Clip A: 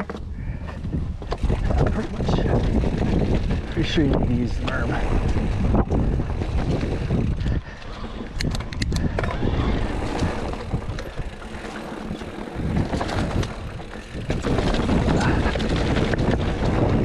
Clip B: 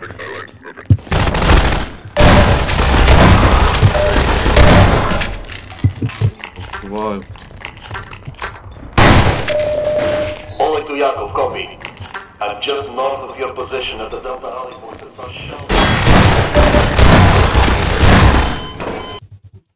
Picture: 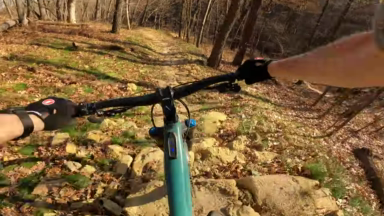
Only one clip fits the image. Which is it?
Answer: A